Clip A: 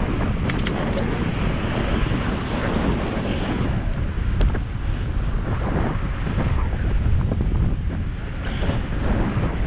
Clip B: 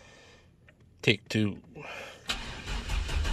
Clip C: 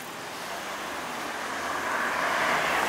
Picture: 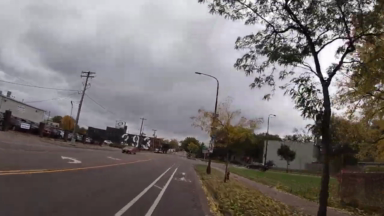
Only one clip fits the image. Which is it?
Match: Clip A